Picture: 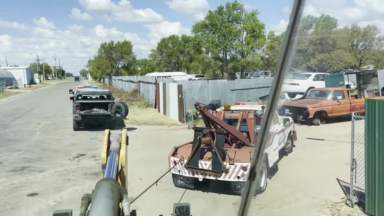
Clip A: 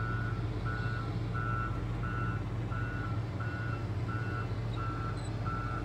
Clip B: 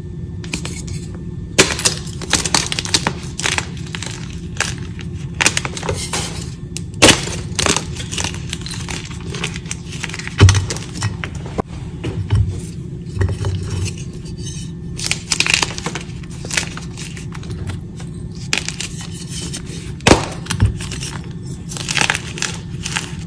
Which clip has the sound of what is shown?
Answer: A